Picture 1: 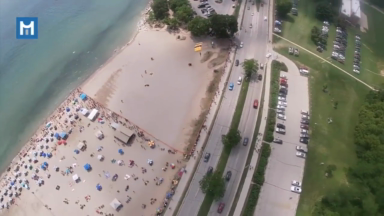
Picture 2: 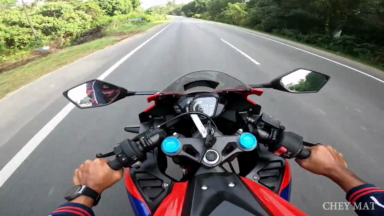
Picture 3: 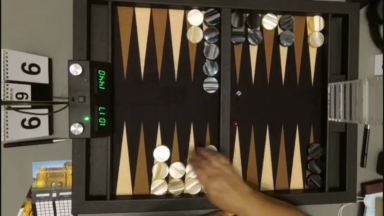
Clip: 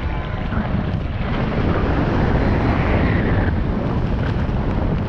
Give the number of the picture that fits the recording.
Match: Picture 1